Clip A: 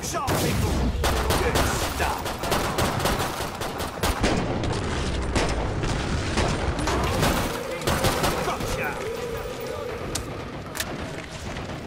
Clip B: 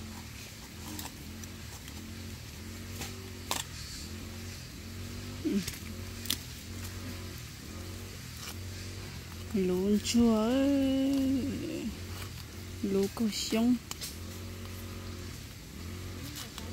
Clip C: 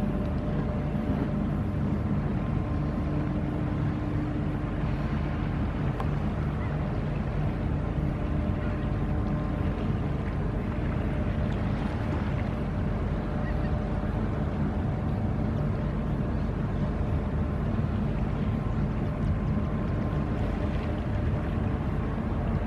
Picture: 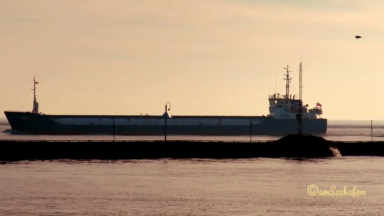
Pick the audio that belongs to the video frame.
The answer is C